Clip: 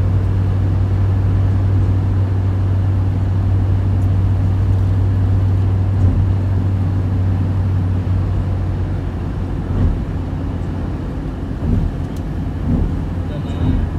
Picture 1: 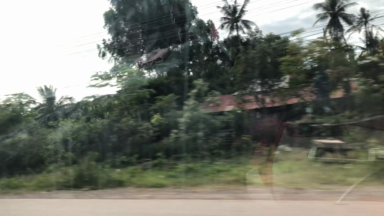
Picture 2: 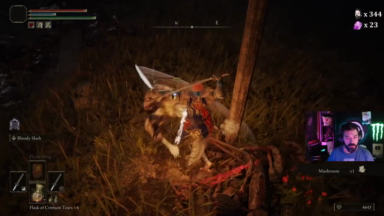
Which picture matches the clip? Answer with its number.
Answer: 1